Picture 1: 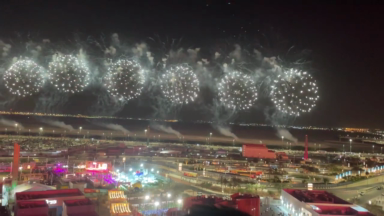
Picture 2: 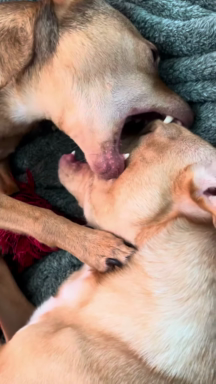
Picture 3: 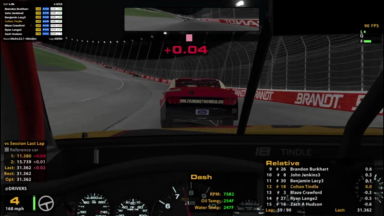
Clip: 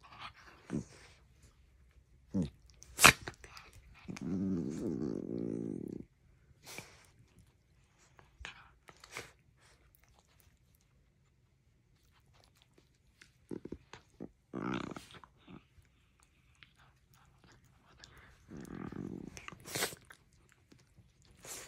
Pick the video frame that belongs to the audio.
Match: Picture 2